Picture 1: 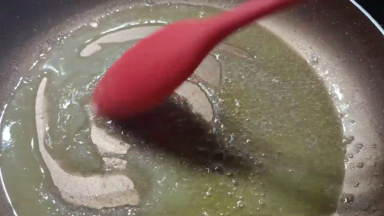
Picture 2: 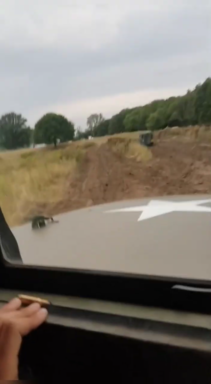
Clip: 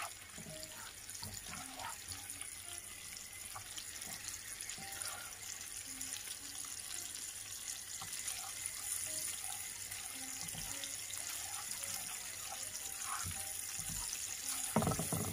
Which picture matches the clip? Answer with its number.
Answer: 1